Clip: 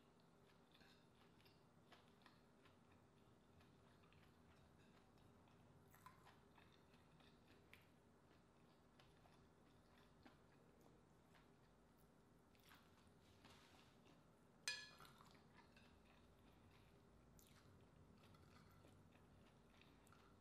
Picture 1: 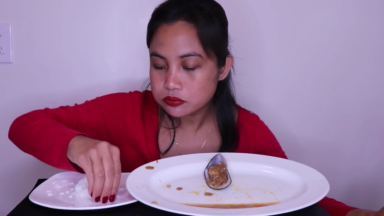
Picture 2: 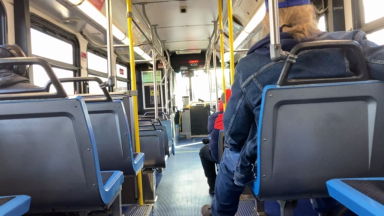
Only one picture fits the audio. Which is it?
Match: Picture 1